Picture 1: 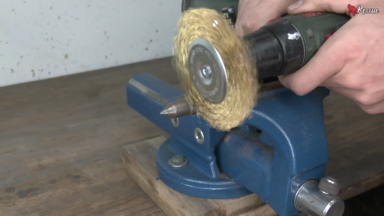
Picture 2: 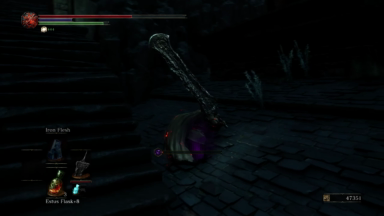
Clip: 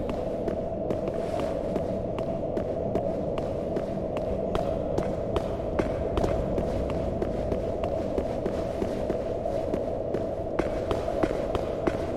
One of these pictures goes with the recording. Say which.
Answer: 2